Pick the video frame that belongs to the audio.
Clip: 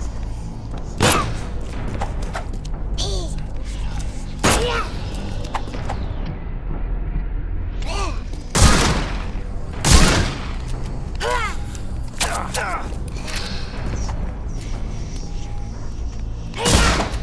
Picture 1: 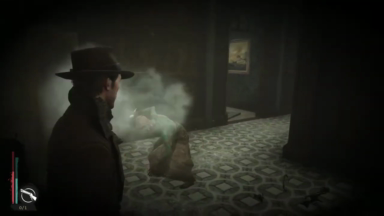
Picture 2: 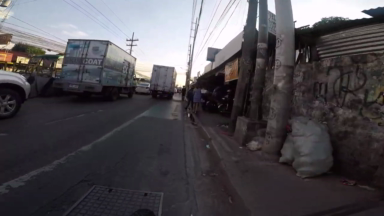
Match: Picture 1